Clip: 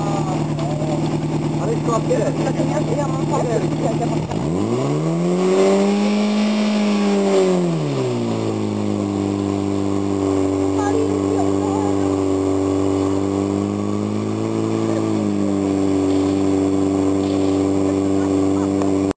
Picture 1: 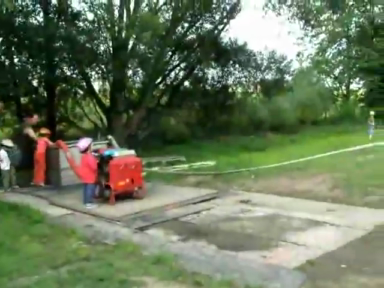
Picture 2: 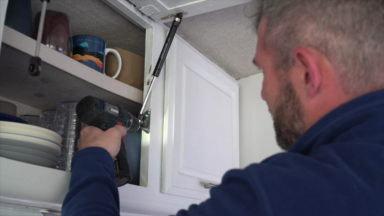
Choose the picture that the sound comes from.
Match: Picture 1